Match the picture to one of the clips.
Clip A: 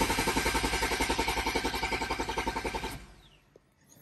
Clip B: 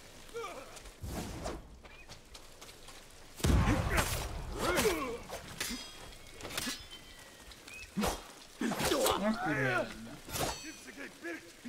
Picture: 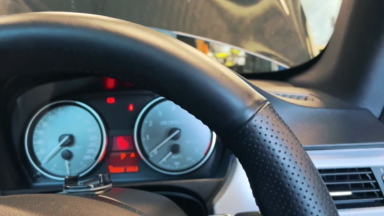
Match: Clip A